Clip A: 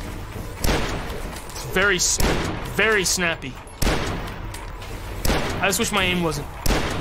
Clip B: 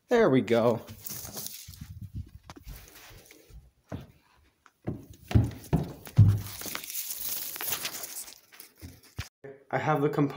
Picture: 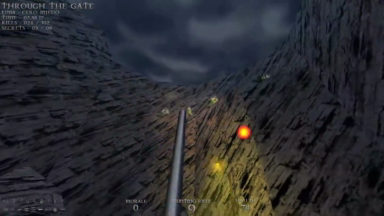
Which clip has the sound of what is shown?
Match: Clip A